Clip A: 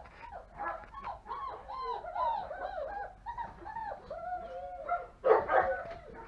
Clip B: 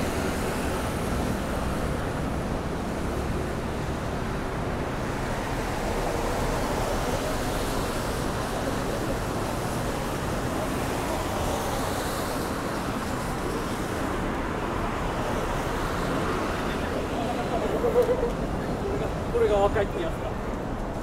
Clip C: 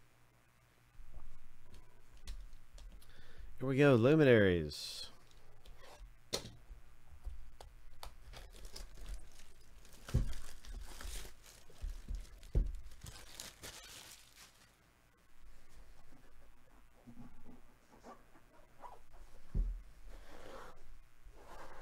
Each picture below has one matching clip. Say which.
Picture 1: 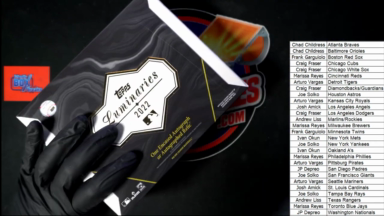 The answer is C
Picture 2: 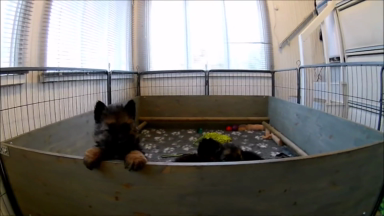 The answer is A